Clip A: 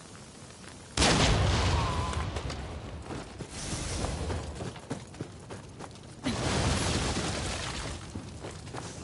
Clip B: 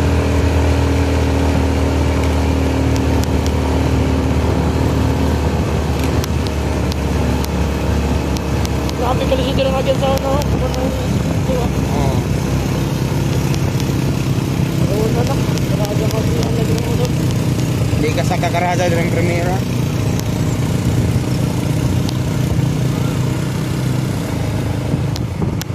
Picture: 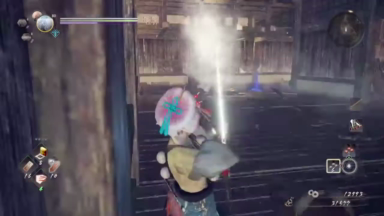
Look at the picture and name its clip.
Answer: A